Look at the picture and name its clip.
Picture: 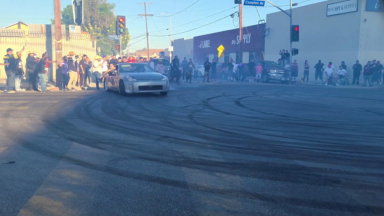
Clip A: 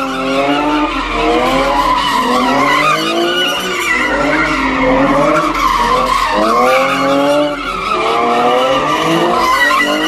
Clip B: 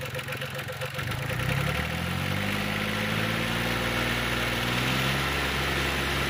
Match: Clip A